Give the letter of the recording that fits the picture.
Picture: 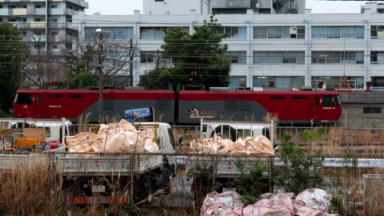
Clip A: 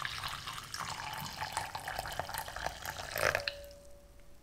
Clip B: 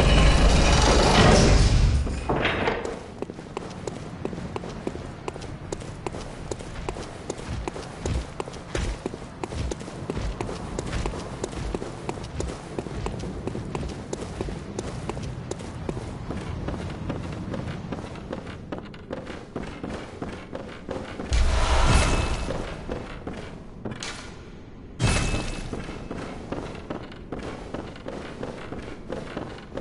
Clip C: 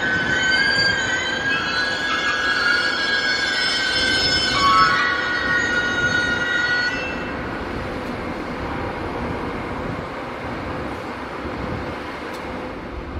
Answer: C